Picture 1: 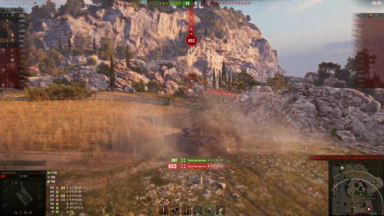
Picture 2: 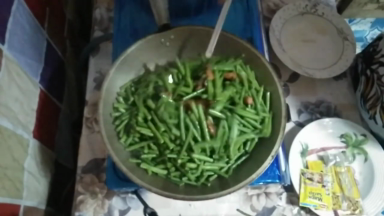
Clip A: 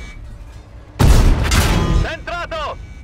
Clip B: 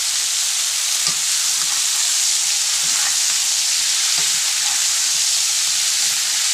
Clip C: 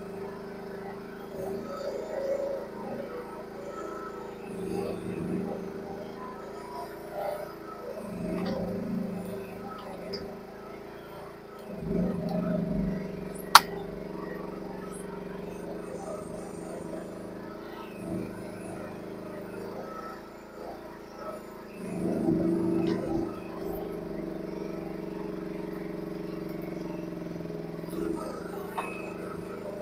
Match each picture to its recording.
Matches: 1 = A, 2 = B